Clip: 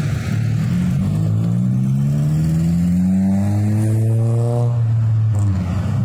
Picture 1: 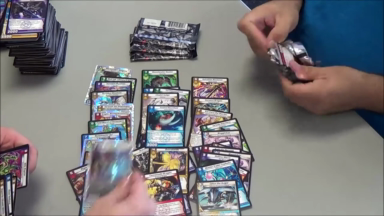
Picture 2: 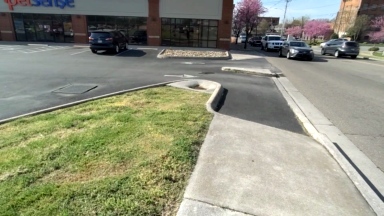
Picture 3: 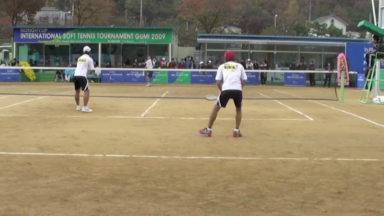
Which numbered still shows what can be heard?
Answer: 2